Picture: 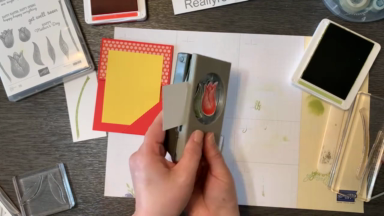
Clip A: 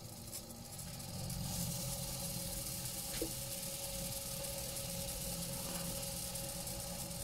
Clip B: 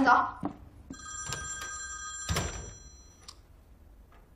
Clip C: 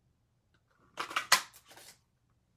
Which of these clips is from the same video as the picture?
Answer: C